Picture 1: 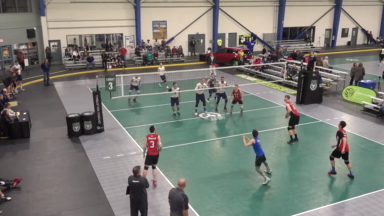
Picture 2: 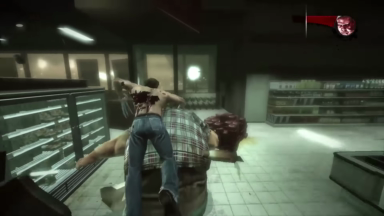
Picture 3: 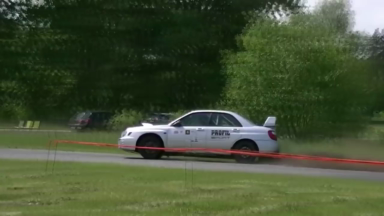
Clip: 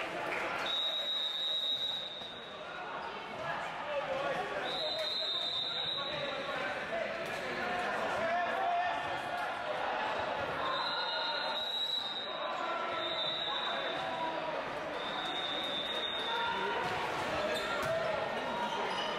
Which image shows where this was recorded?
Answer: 1